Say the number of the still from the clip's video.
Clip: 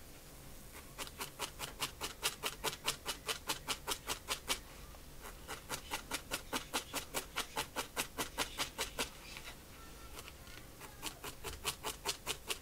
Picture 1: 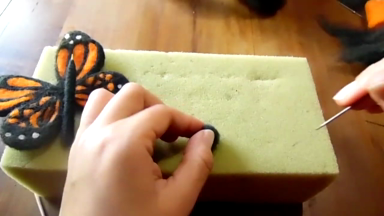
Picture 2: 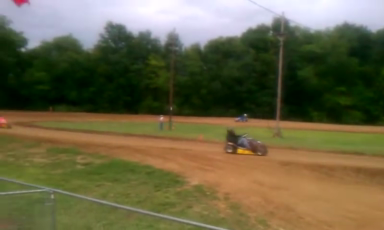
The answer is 1